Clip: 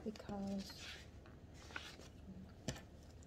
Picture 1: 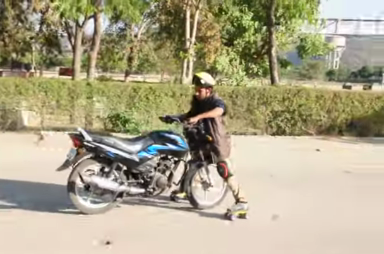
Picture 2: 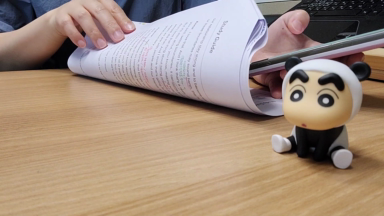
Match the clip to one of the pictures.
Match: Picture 2